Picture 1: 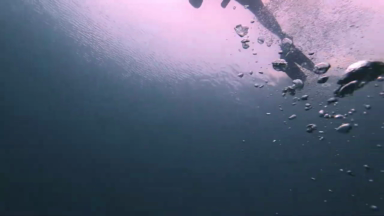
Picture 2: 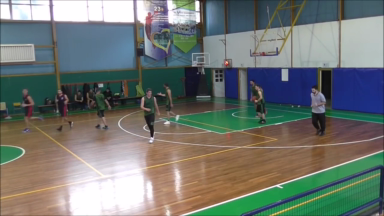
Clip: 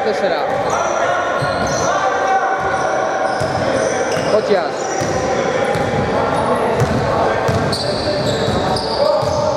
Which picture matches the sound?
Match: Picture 2